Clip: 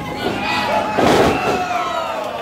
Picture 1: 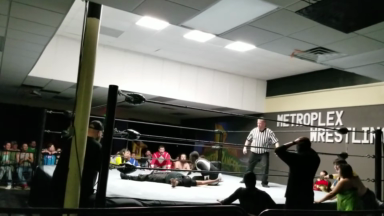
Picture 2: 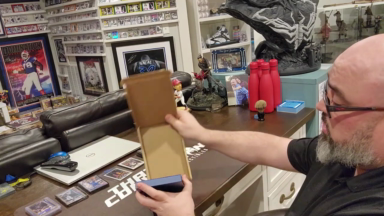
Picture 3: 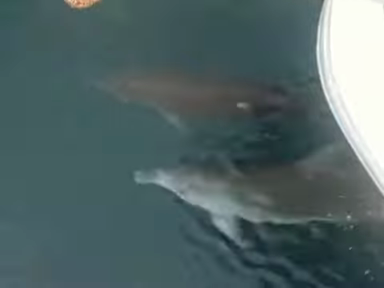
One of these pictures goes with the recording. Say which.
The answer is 1